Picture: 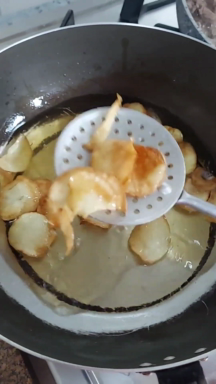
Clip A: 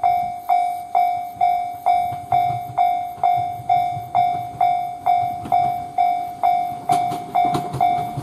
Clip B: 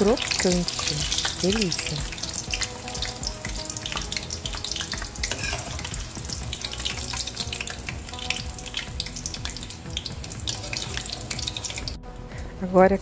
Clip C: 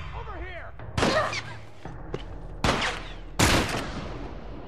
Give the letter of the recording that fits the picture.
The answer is B